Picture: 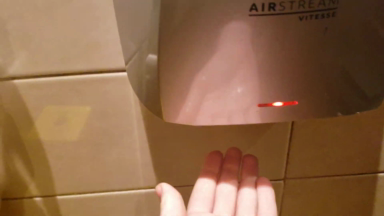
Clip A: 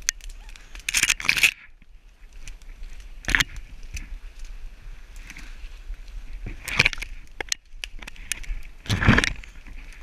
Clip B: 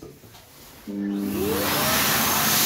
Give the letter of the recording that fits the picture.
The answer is B